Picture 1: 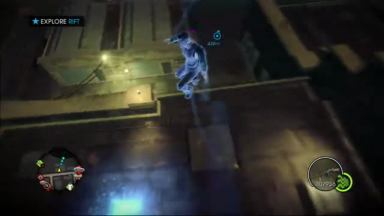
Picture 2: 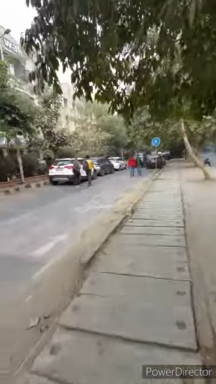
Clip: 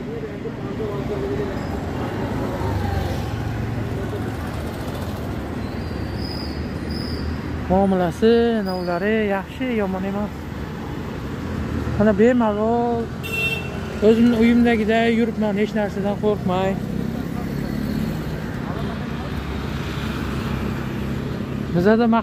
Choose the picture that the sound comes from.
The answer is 2